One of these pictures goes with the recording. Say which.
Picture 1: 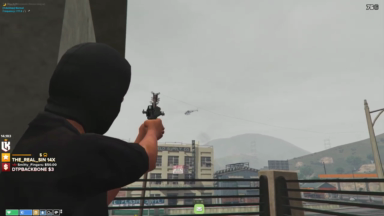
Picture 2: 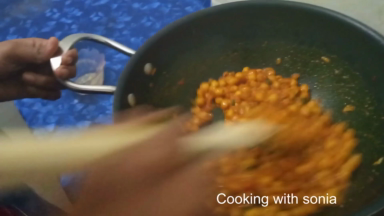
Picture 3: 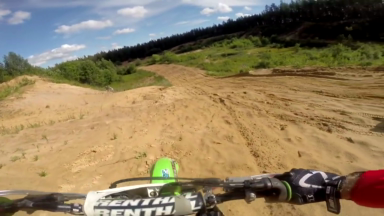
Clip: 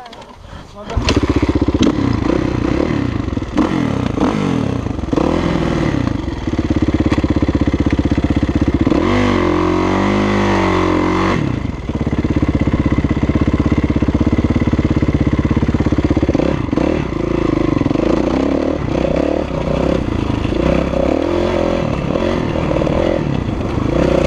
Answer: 3